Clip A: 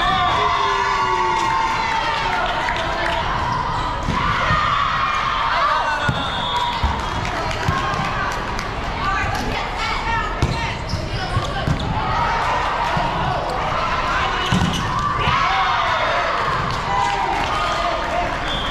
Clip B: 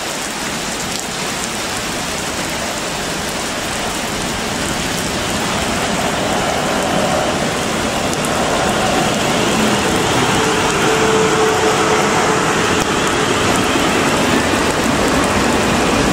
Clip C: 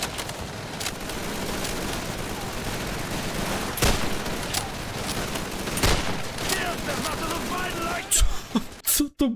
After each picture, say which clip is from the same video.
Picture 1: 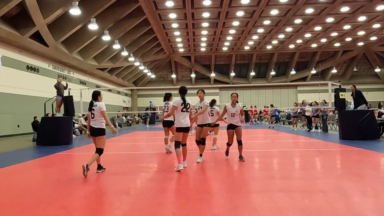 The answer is A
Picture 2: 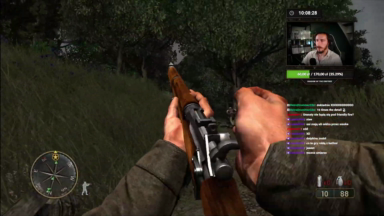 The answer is C